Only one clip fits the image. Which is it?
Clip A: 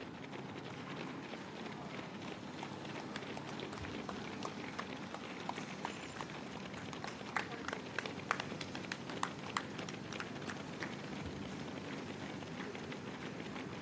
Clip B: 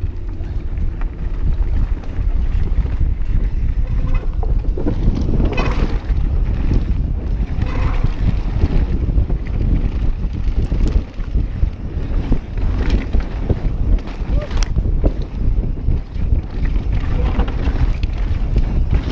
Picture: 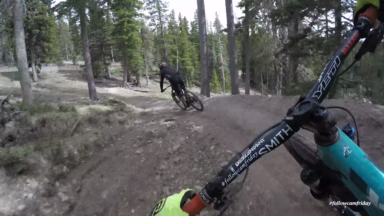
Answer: B